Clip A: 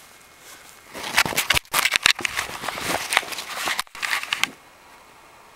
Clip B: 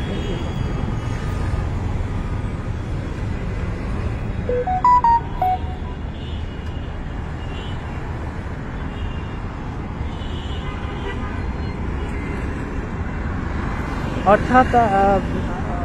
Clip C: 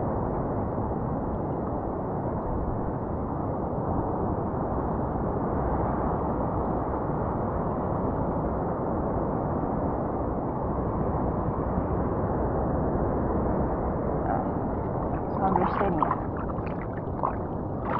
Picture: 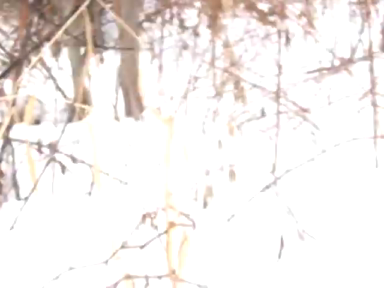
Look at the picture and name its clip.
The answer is A